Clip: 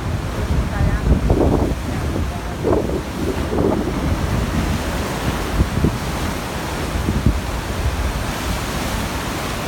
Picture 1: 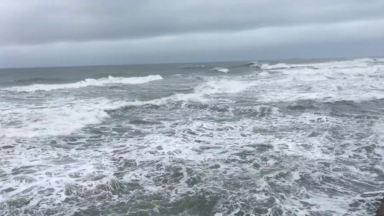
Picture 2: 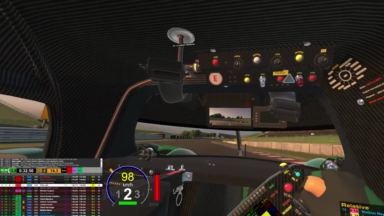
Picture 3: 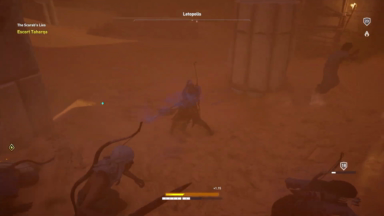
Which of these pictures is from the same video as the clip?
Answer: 1